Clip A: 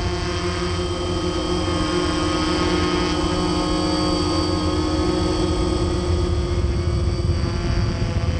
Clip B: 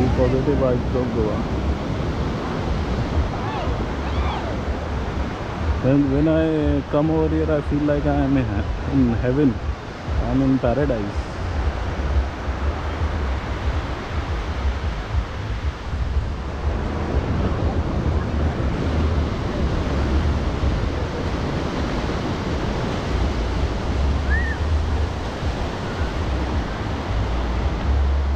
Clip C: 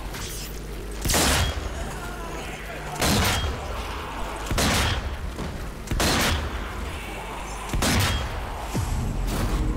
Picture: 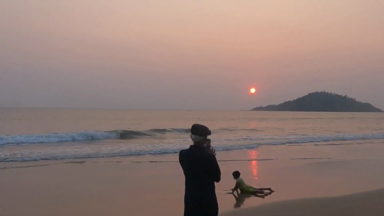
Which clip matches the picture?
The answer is B